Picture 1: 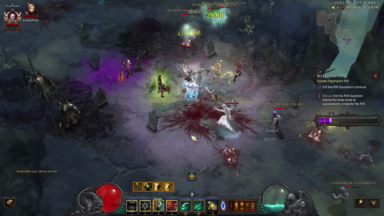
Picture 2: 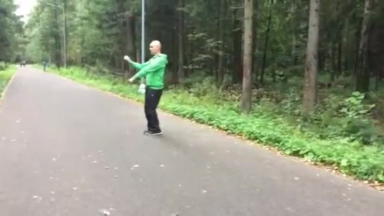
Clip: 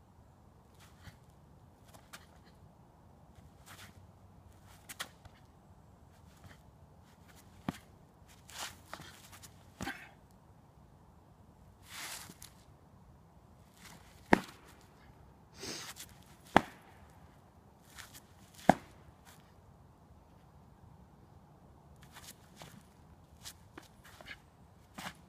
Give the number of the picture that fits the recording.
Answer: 2